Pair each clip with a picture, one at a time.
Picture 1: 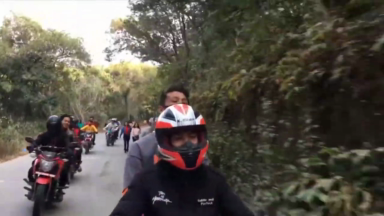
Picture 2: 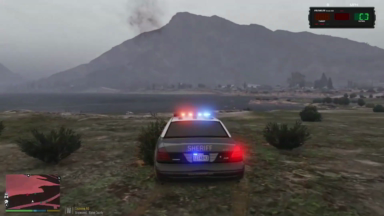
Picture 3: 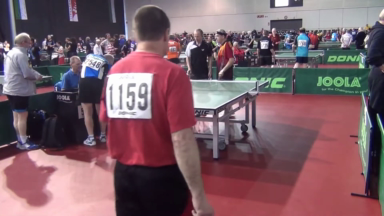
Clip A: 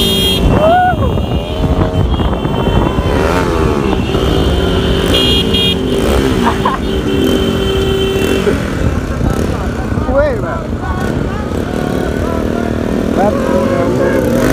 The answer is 1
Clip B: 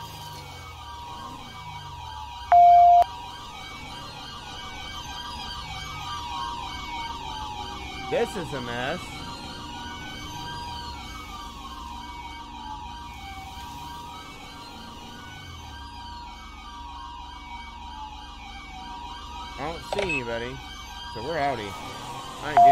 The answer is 2